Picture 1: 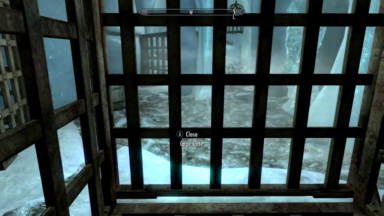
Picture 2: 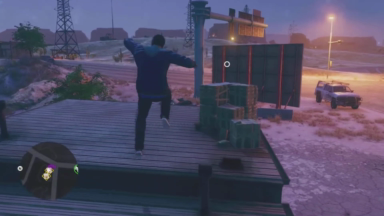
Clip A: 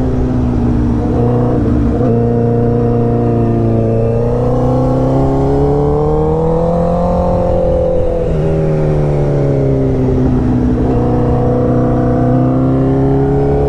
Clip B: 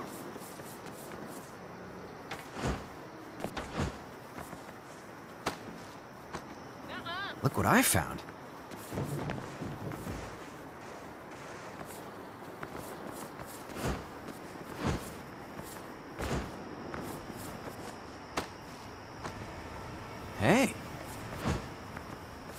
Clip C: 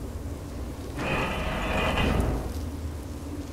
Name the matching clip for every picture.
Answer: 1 C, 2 B